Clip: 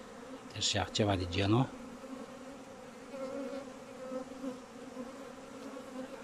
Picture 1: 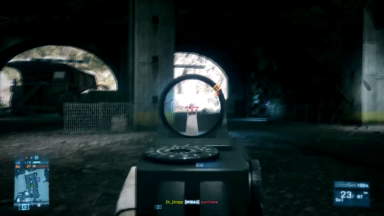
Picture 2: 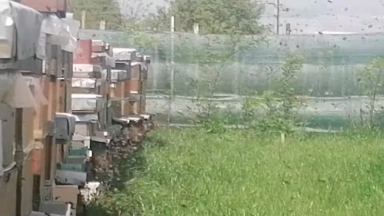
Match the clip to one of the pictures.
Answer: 2